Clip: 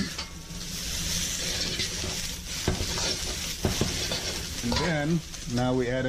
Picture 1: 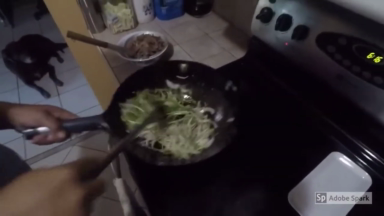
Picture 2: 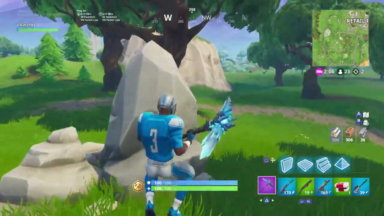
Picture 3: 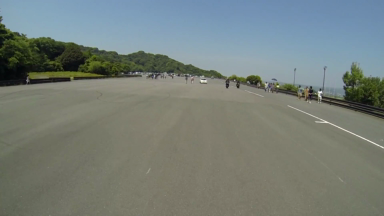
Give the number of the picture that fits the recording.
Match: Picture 1